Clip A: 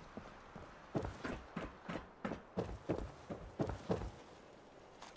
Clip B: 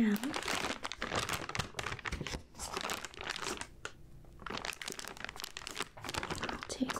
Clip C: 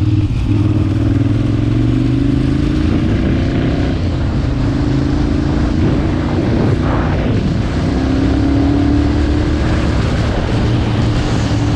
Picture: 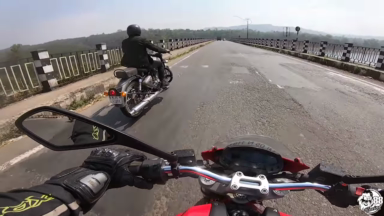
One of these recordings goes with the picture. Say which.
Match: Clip C